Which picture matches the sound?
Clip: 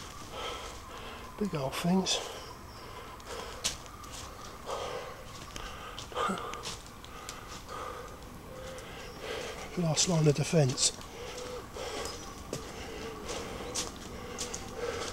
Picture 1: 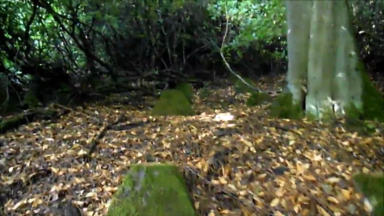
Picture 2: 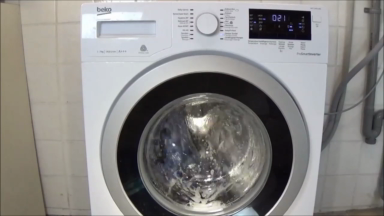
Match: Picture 1